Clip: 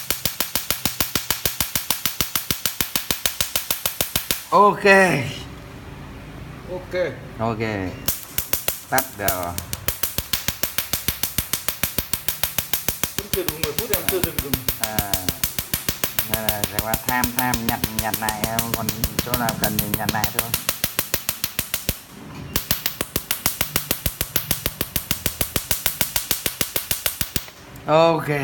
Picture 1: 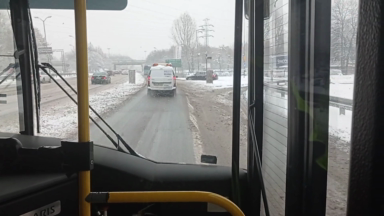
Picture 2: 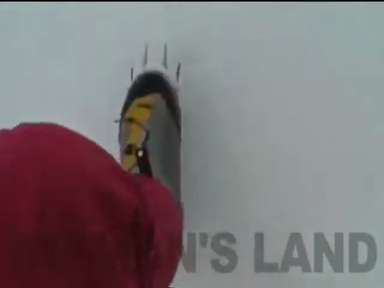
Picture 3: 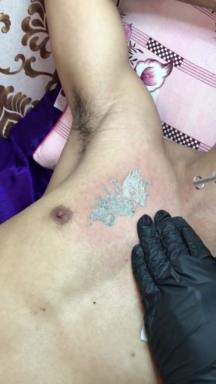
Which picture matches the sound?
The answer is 3